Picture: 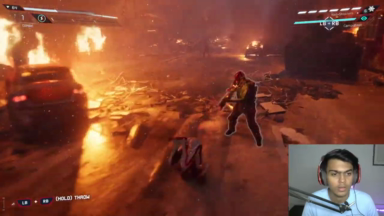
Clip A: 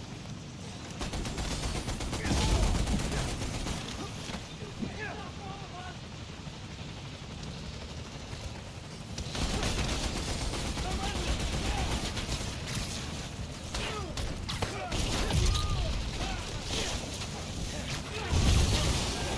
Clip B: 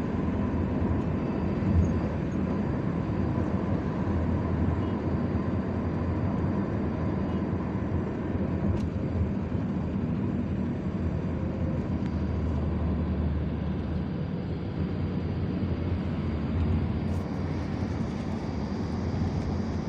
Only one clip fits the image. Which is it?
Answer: A